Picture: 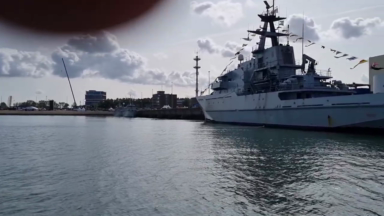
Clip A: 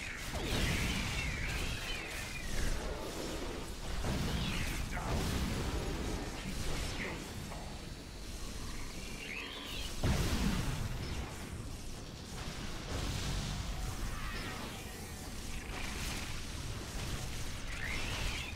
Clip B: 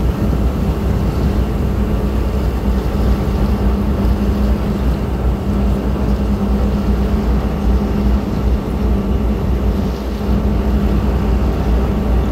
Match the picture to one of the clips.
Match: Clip B